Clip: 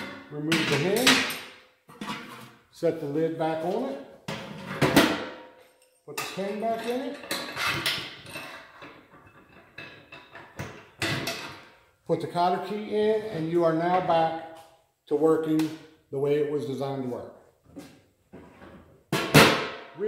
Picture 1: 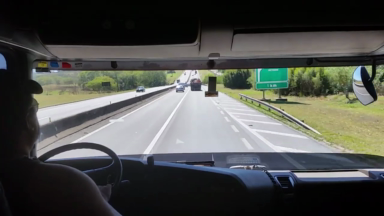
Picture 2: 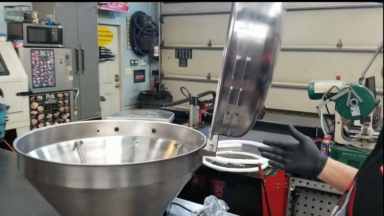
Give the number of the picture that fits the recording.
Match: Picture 2